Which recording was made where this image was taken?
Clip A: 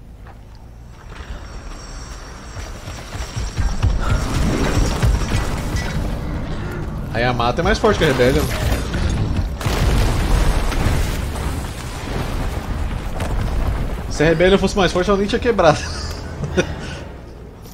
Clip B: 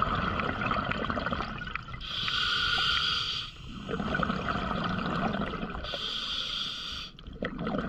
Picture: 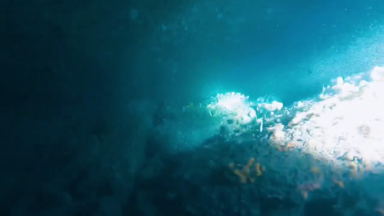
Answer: B